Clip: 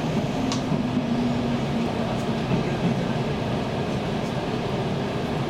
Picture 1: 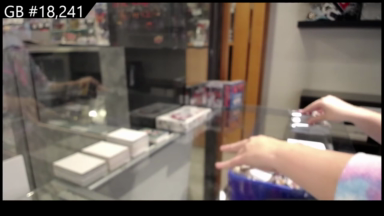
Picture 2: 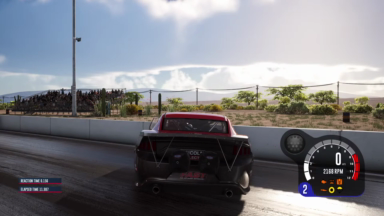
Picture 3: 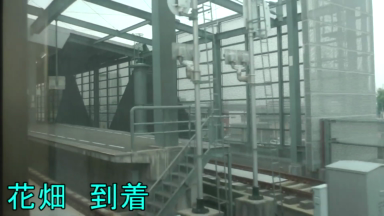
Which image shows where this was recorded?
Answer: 3